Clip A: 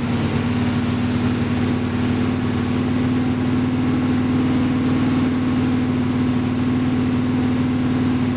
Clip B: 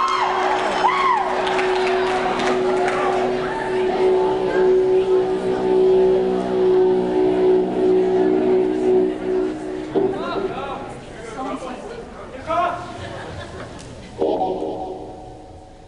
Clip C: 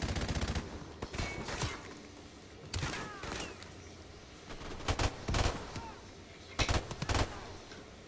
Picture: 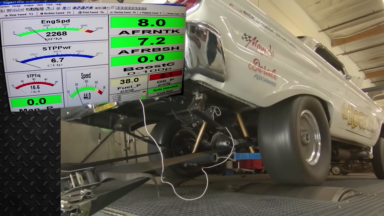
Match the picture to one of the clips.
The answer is A